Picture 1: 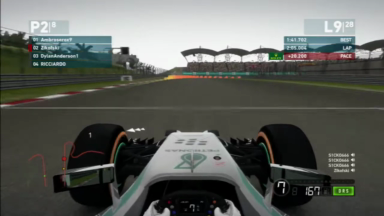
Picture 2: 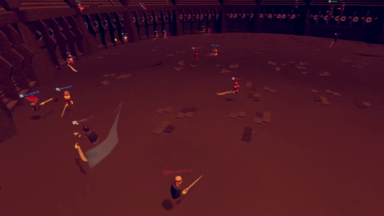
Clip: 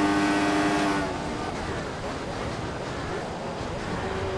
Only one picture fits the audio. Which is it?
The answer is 1